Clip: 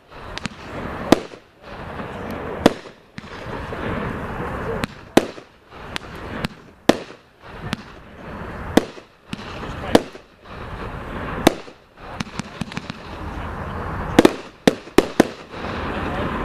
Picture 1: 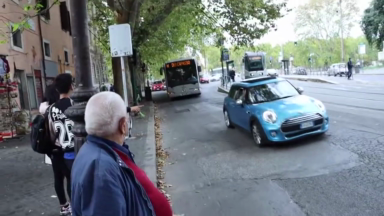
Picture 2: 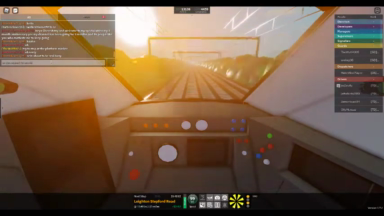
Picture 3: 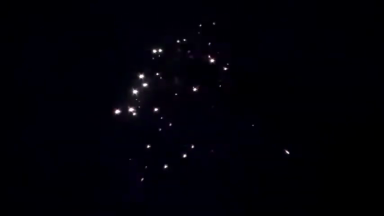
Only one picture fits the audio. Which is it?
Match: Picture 3